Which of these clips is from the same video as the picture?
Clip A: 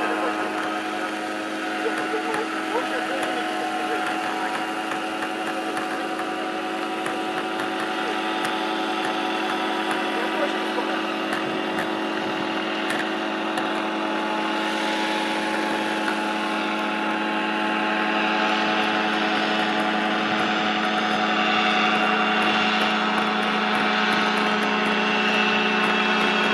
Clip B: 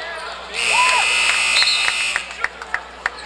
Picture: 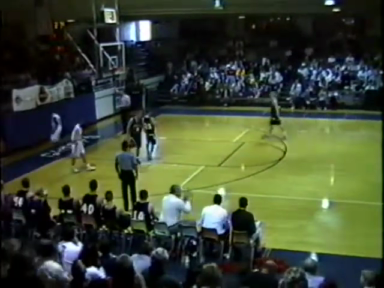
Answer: B